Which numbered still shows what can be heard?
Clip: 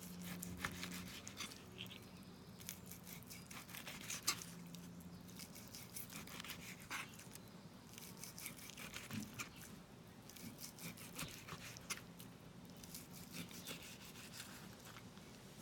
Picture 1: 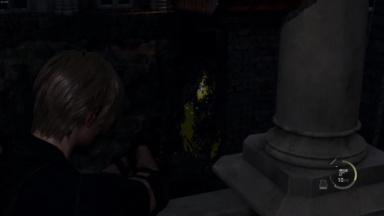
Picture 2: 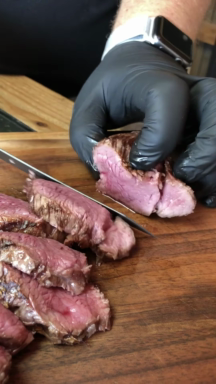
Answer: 2